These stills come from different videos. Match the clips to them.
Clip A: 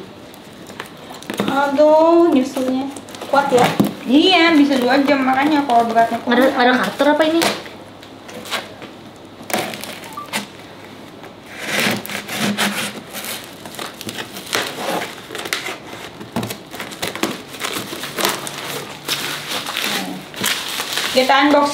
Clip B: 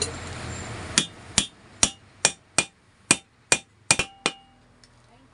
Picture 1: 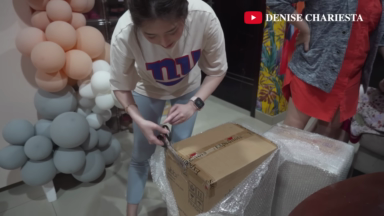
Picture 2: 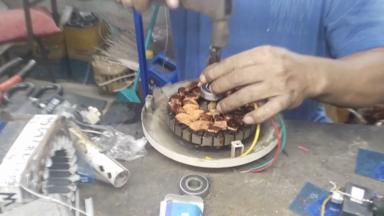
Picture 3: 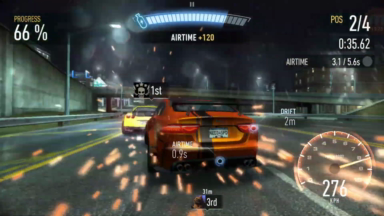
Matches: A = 1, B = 2